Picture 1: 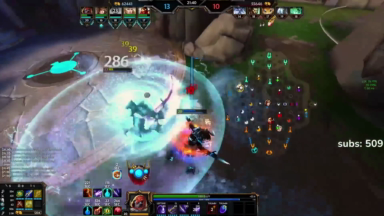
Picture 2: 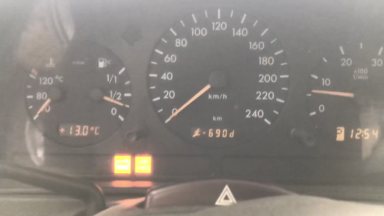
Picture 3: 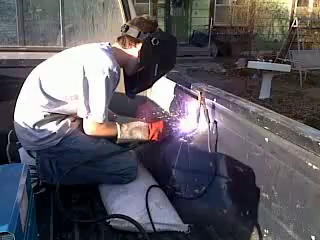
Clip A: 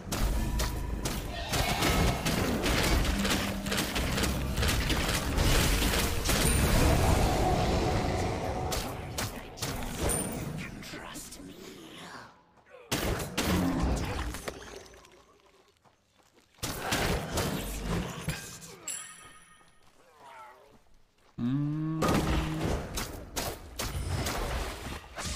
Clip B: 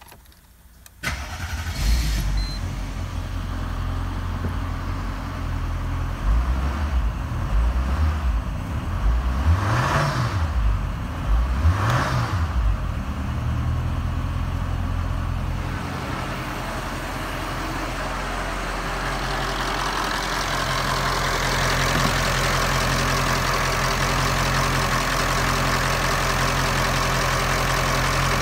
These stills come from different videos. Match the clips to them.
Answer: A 1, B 2